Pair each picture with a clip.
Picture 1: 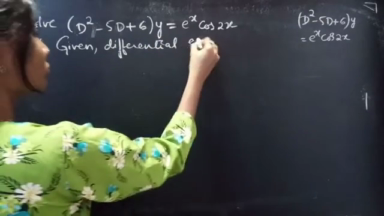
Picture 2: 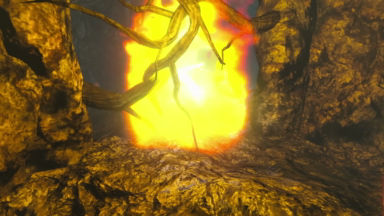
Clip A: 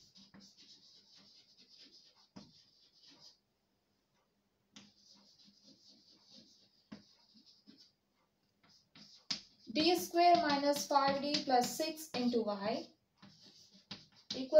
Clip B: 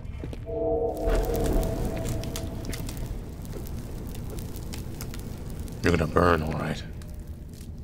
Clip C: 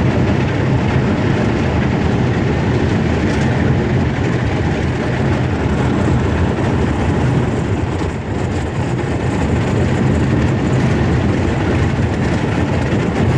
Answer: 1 A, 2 B